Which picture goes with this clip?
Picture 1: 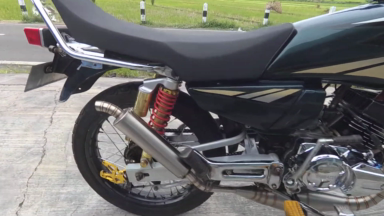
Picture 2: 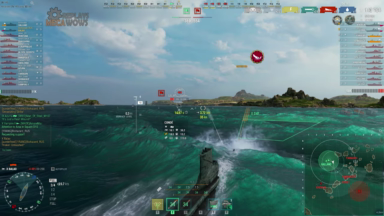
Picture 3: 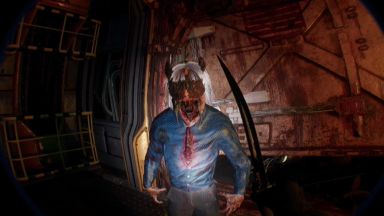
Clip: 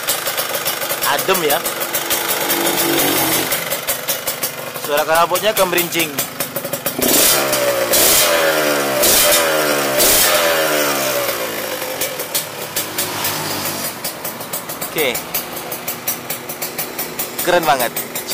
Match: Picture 1